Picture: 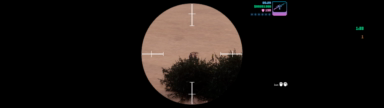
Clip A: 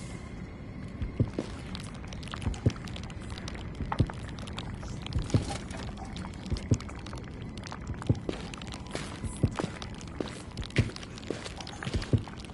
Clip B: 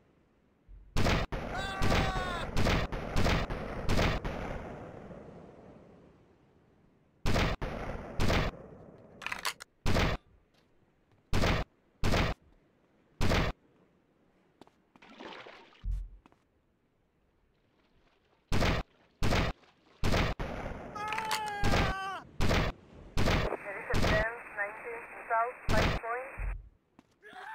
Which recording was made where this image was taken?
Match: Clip B